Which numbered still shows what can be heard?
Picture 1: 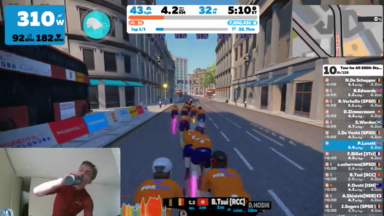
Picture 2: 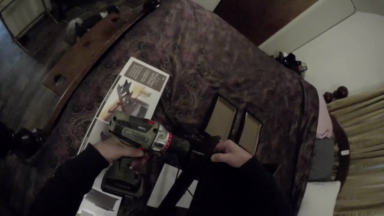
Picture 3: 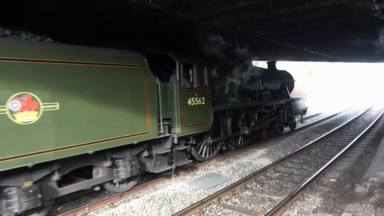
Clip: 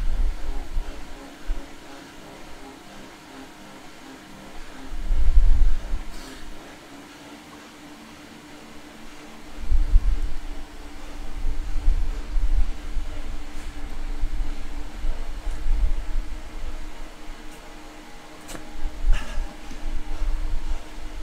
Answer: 1